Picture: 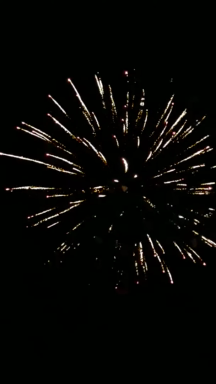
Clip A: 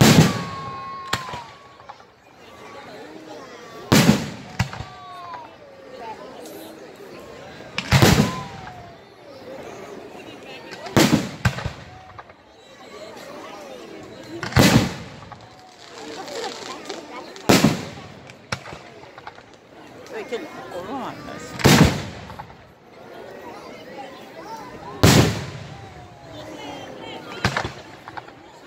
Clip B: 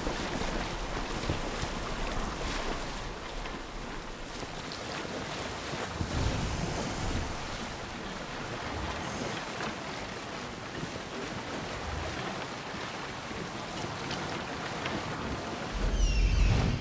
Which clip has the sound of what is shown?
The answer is A